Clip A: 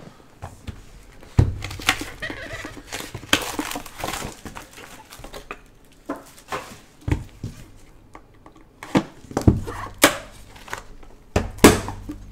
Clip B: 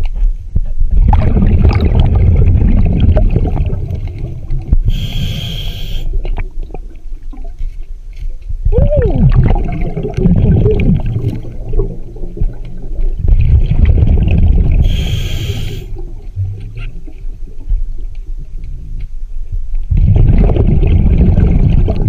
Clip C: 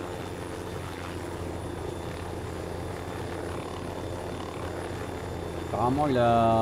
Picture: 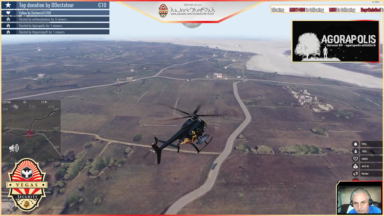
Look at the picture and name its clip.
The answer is C